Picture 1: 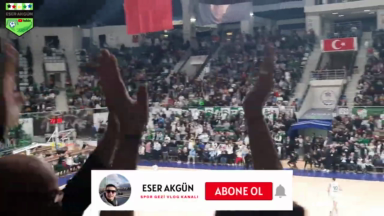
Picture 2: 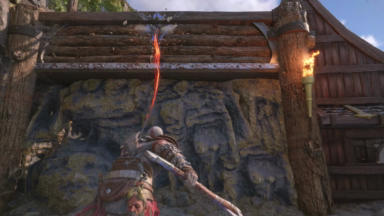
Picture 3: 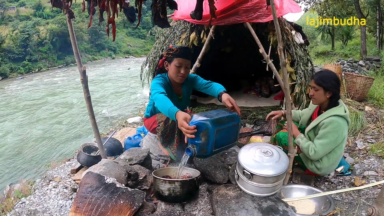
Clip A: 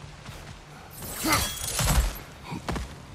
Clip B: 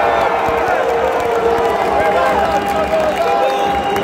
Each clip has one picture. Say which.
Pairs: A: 2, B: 1